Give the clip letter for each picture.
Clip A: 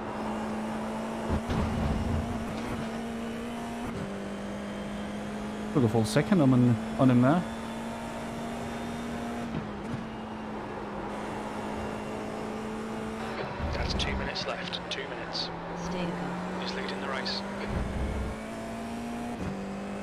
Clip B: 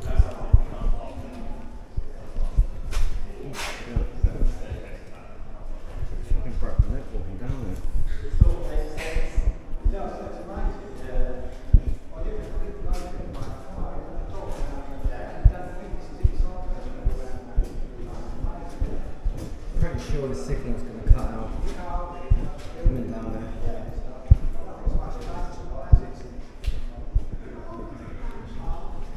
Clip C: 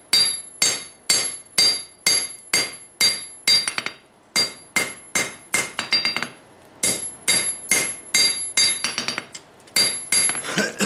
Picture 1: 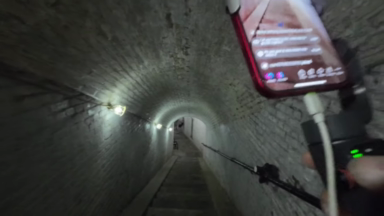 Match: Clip B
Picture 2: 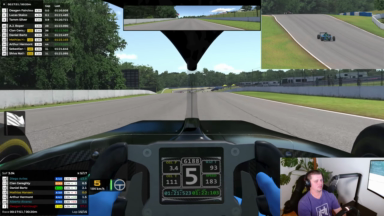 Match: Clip A